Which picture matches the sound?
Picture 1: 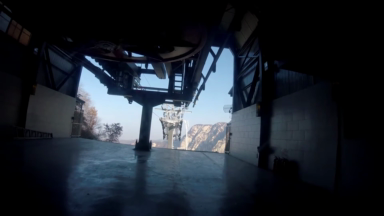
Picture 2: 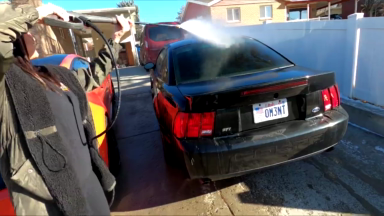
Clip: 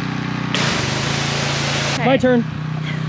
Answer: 2